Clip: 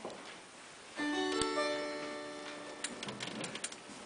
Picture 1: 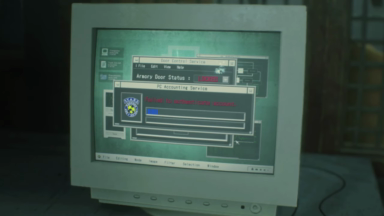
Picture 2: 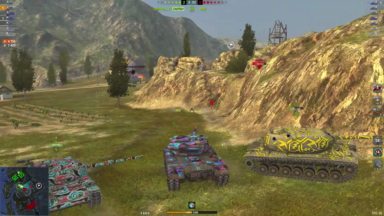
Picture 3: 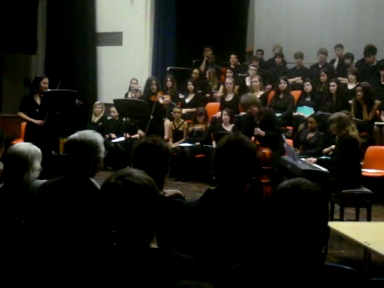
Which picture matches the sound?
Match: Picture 3